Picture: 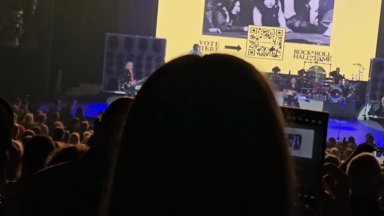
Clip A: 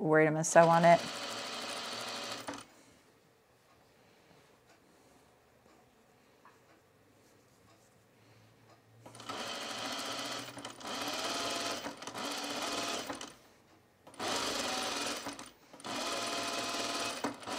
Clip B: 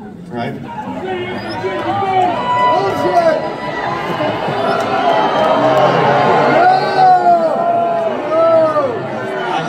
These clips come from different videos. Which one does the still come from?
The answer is B